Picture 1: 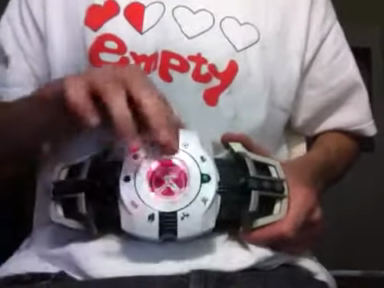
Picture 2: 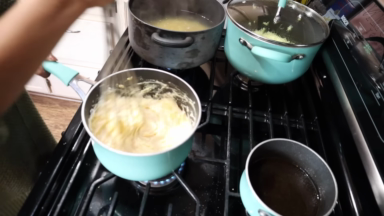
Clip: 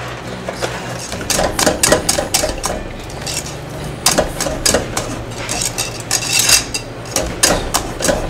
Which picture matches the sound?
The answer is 2